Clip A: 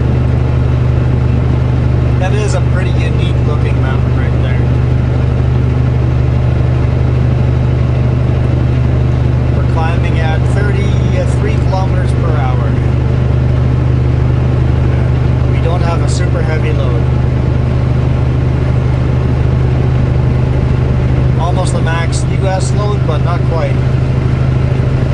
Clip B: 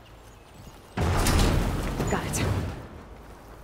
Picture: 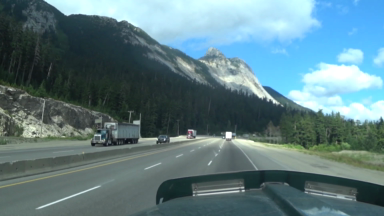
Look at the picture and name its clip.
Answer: A